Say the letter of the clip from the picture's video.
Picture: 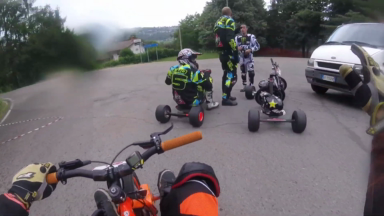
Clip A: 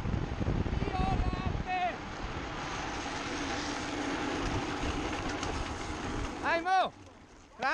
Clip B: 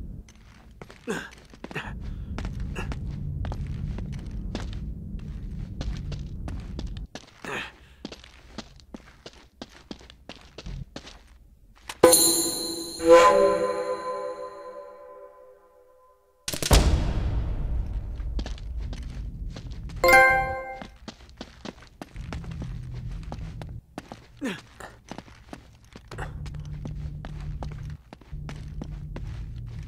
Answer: A